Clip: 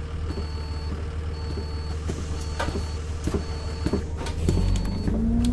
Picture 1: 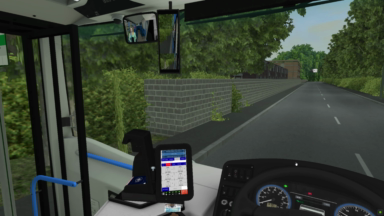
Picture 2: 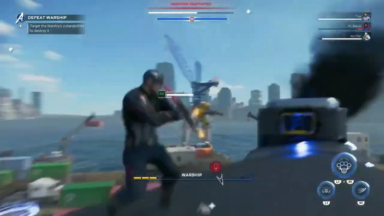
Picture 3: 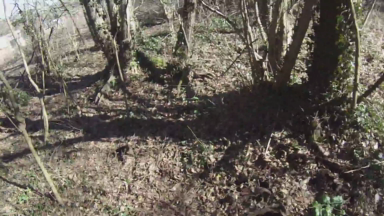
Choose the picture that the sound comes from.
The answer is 1